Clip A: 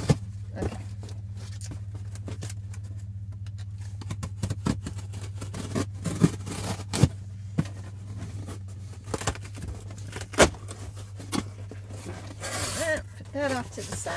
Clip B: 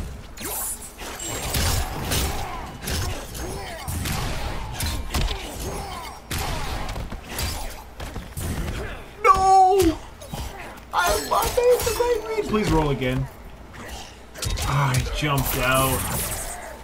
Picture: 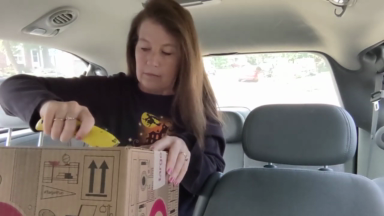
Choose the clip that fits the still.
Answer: A